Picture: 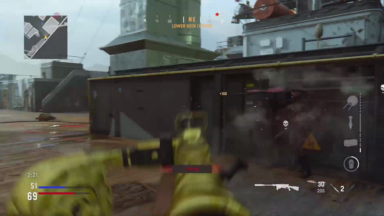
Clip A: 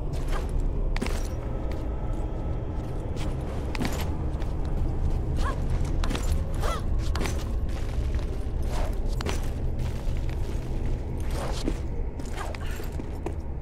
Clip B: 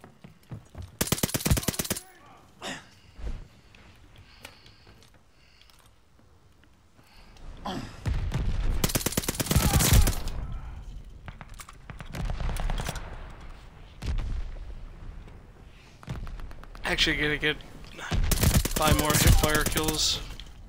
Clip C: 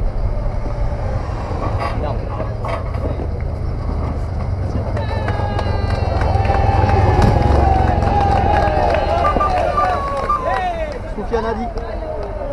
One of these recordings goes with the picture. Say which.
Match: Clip B